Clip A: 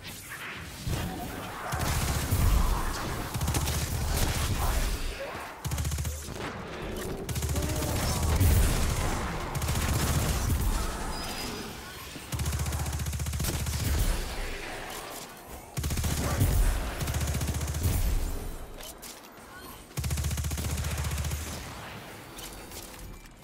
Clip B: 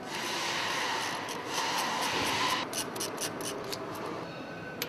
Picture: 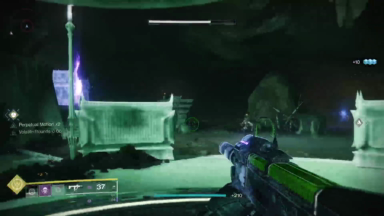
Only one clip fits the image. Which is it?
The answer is A